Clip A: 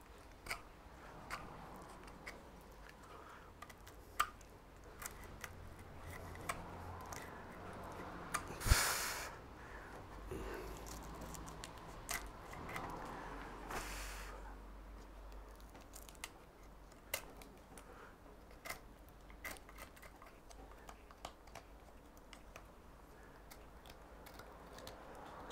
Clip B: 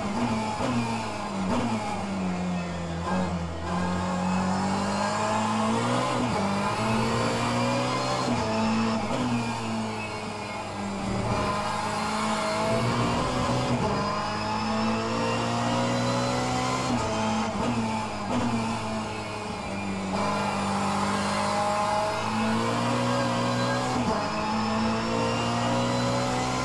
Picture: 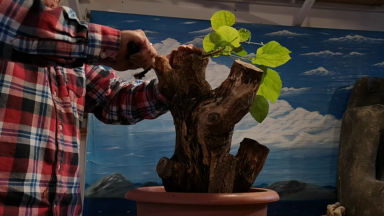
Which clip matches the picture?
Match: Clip A